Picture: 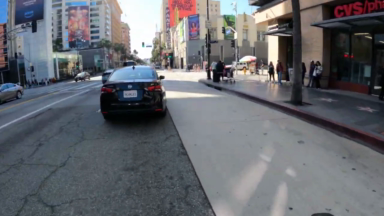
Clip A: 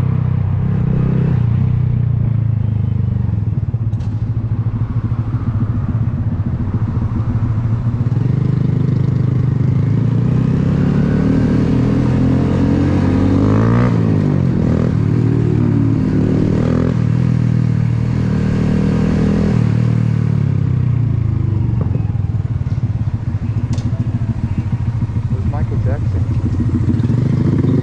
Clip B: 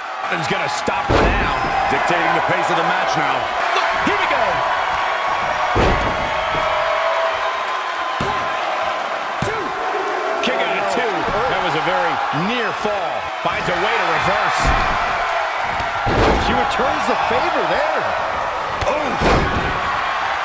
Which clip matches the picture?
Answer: A